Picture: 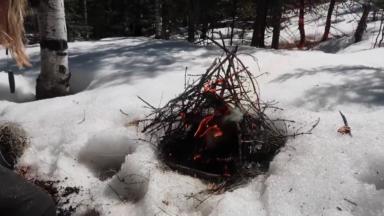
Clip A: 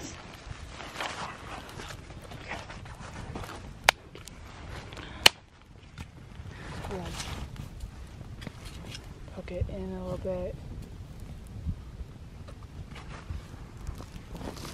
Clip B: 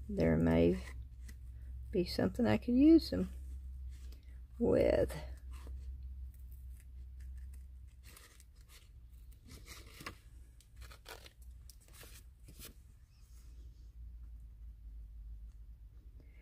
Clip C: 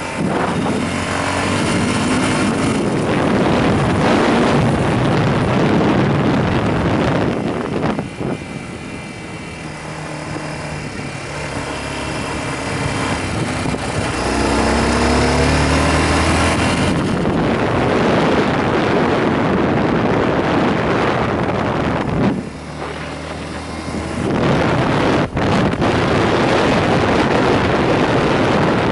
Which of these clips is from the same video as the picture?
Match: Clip A